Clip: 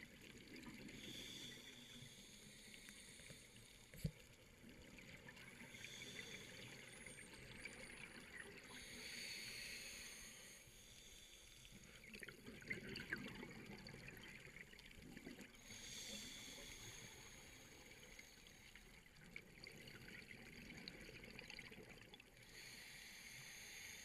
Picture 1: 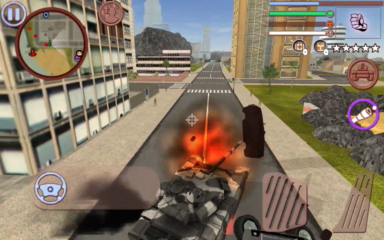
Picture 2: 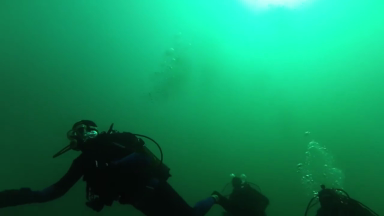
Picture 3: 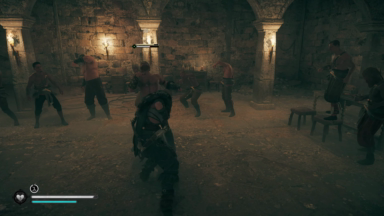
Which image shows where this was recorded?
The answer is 2